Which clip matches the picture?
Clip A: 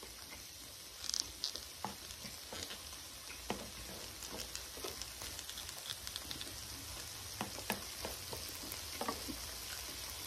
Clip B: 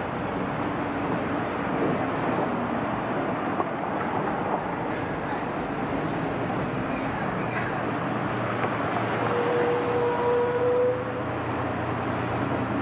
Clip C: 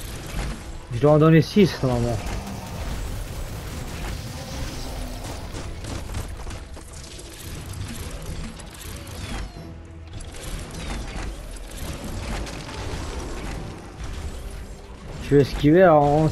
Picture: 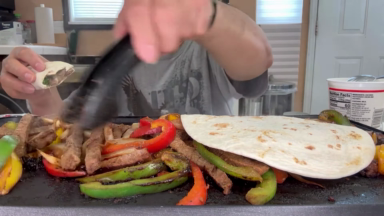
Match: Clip A